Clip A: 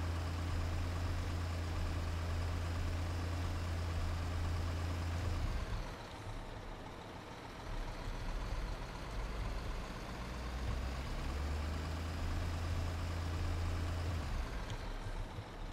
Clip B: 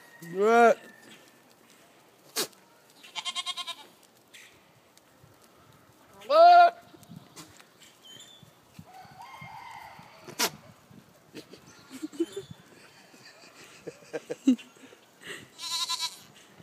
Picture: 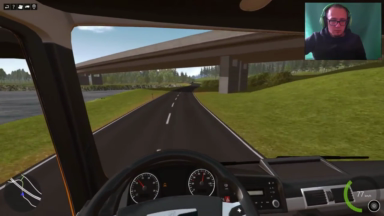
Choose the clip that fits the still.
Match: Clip A